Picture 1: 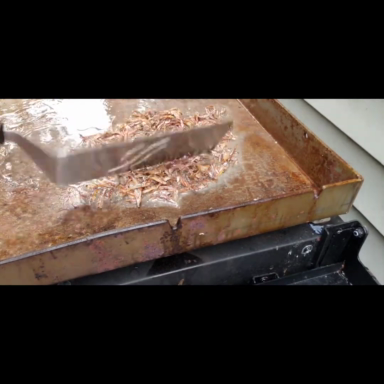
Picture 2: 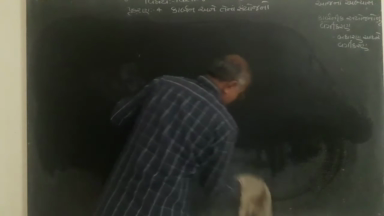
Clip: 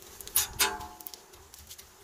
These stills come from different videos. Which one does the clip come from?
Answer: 1